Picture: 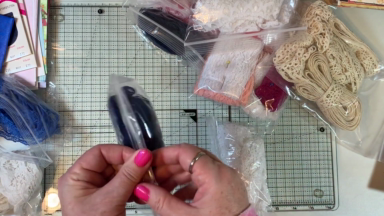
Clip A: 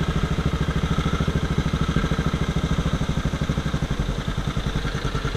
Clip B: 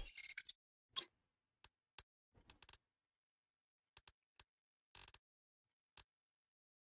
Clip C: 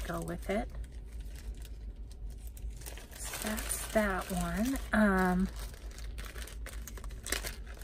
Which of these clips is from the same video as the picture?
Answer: C